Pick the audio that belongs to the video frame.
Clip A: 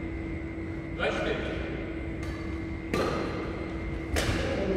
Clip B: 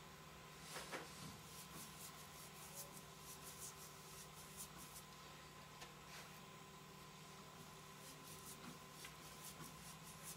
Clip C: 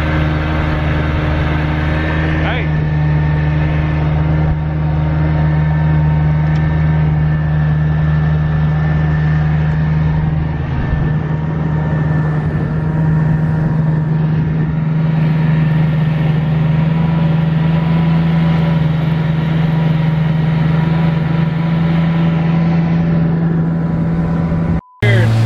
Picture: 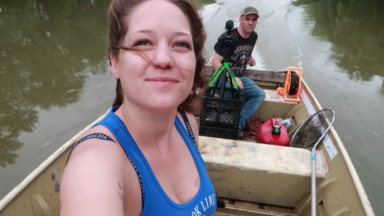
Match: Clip C